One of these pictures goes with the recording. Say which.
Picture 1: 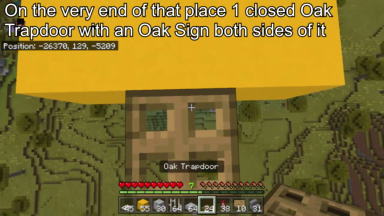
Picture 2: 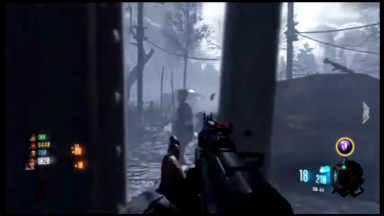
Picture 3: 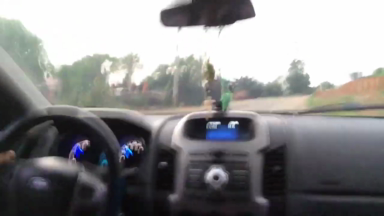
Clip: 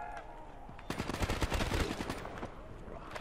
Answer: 2